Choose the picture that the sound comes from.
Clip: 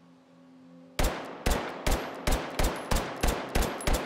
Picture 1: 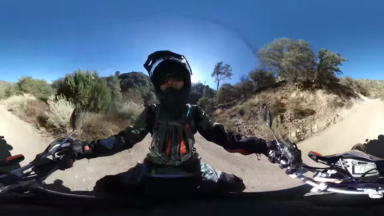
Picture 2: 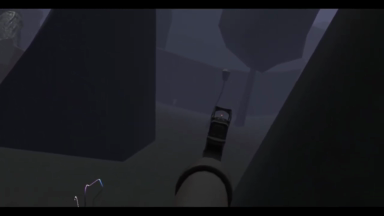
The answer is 2